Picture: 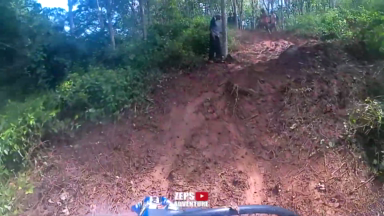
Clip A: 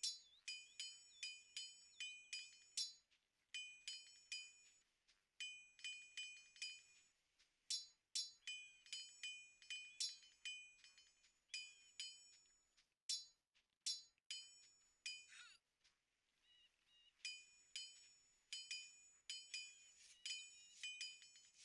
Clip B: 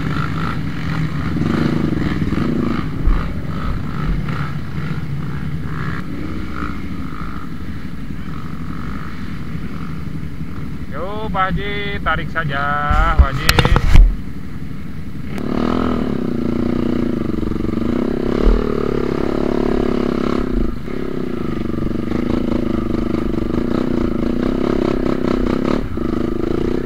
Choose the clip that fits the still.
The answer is B